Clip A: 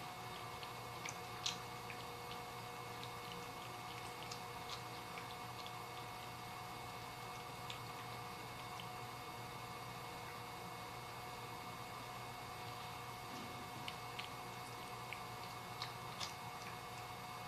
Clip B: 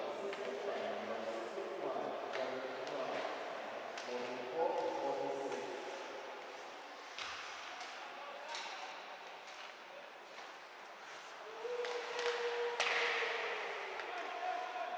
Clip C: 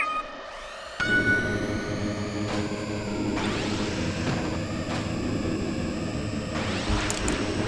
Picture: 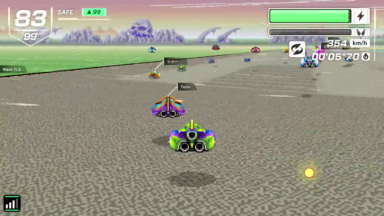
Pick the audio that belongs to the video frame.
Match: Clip C